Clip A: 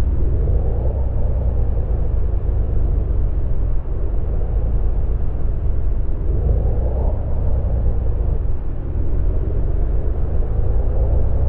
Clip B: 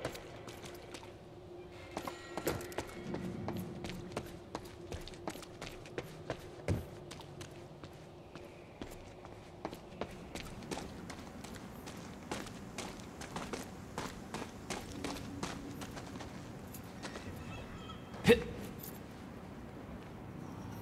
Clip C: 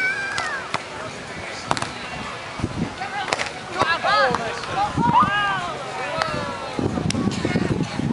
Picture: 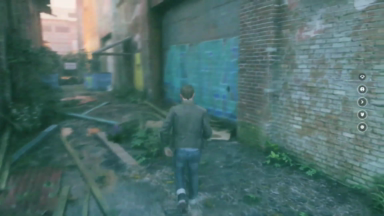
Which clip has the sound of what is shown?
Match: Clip B